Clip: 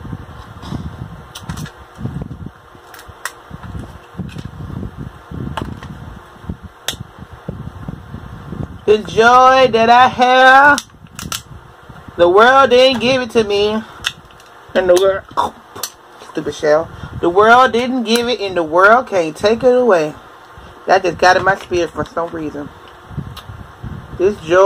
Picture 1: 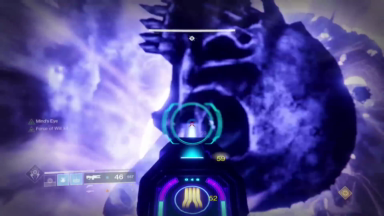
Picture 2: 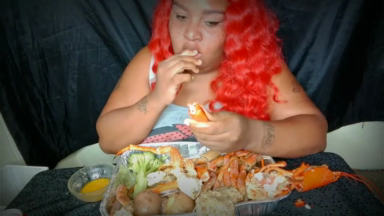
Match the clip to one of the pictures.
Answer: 2